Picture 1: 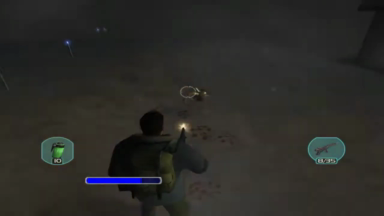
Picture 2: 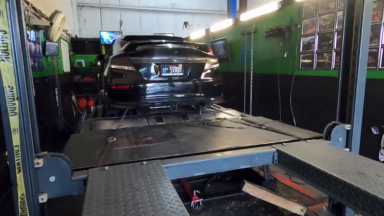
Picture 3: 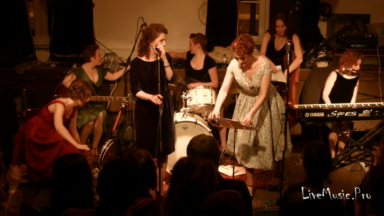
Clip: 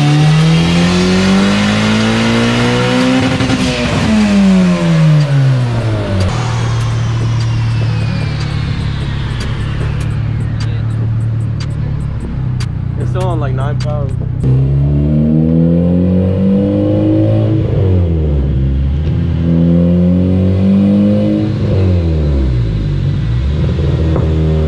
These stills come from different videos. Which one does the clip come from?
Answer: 2